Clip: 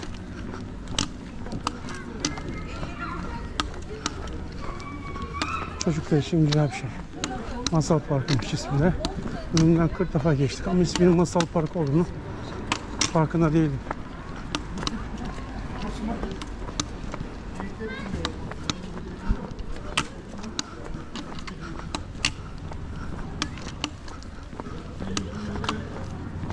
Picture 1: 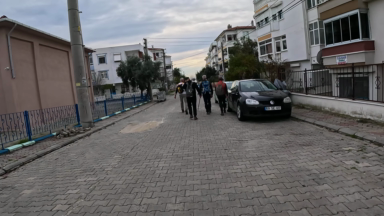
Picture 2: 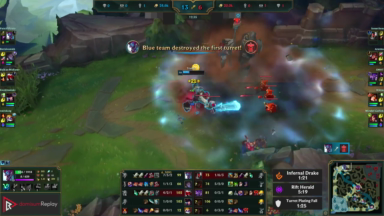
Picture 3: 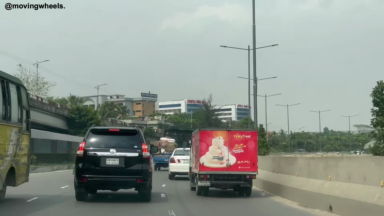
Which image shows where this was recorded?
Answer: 1